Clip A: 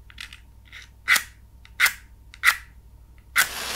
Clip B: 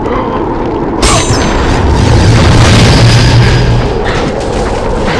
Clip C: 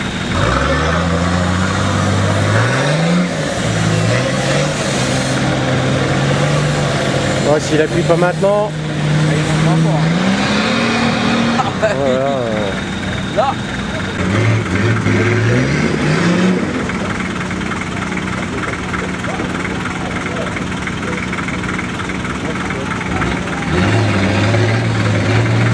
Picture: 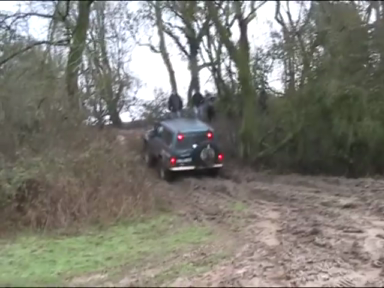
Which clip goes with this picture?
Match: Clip C